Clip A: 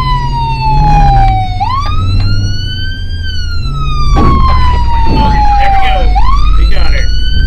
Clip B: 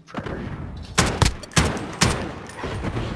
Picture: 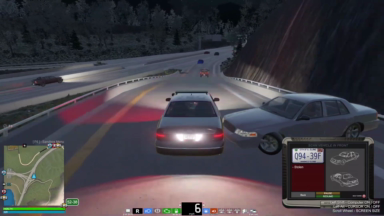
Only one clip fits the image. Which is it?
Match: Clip A